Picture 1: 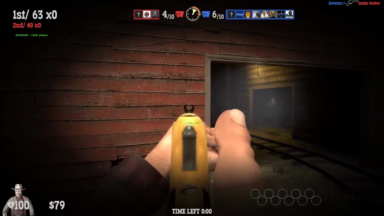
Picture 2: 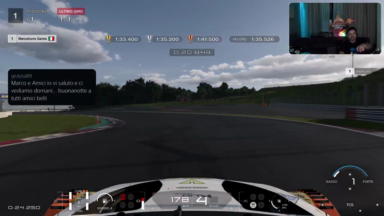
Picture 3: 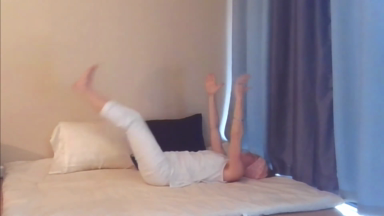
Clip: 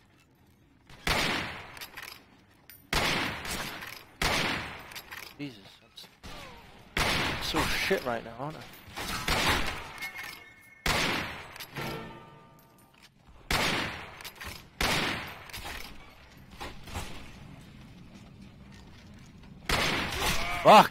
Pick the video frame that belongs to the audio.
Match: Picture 1